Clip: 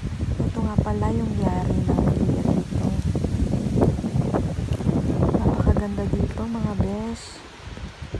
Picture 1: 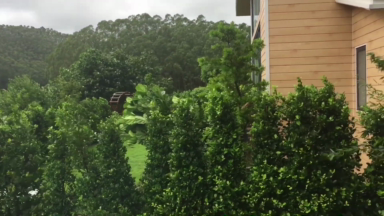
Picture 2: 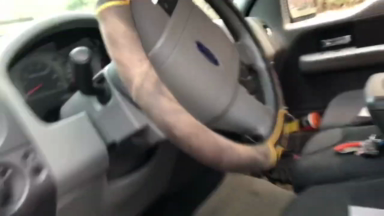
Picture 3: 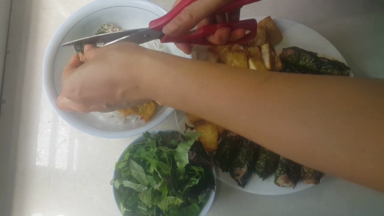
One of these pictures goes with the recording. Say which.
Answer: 1